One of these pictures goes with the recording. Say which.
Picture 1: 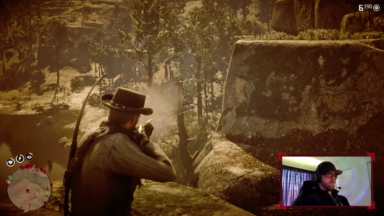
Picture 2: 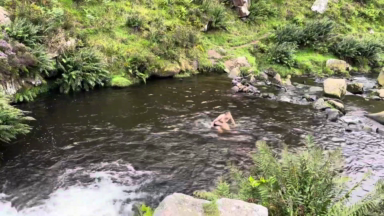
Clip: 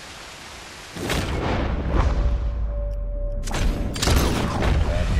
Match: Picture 1